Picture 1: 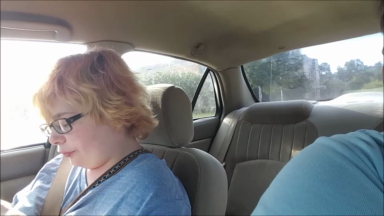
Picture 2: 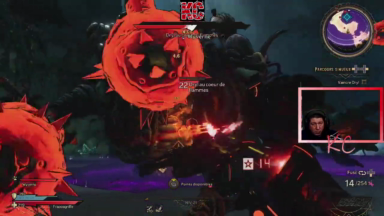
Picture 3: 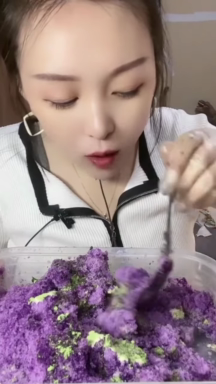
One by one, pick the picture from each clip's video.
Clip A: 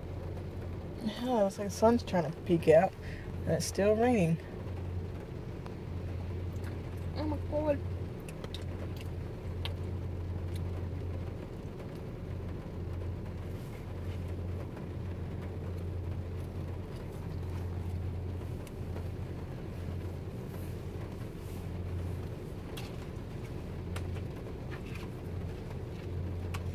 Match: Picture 1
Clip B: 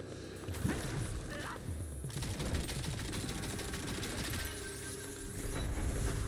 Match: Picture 2